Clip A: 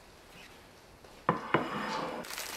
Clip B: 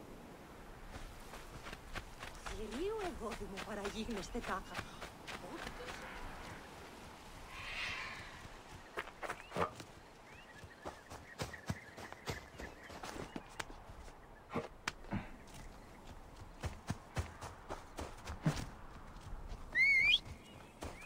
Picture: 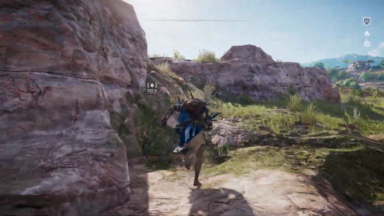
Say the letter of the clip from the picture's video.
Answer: B